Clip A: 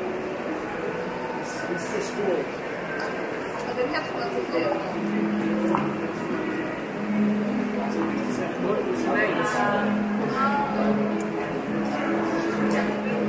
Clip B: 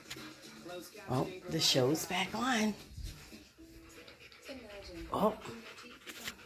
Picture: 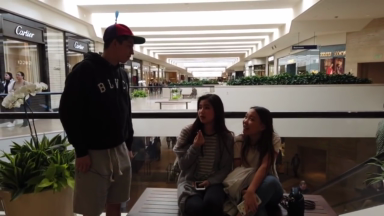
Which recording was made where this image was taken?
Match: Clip A